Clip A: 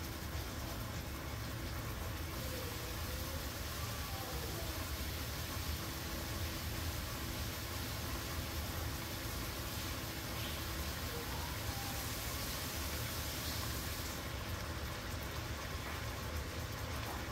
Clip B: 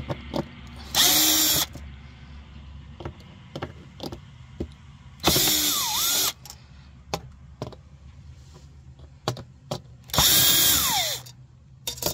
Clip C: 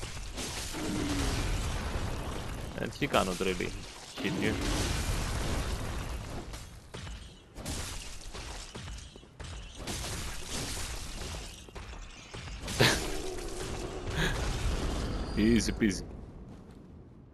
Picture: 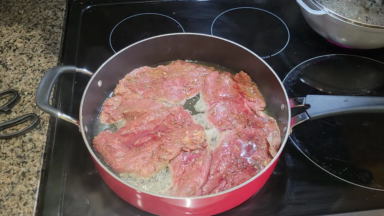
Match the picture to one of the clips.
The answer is A